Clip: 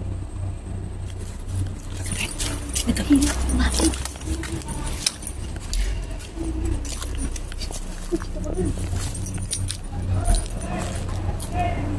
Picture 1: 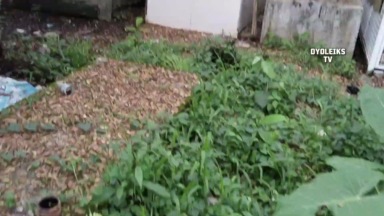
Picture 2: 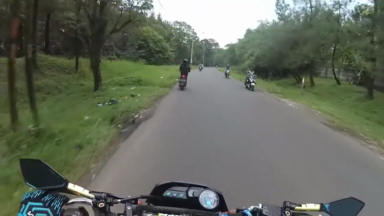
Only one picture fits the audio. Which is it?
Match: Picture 1